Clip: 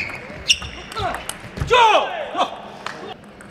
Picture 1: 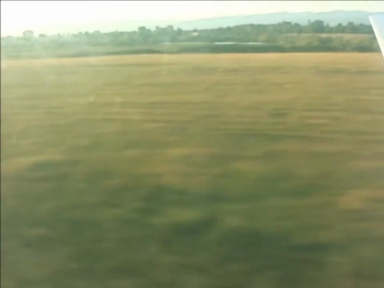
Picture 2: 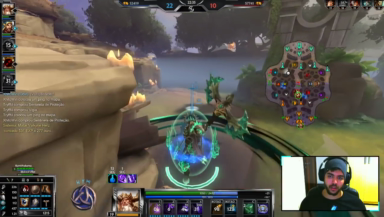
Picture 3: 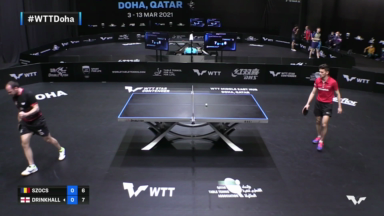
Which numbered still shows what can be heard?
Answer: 3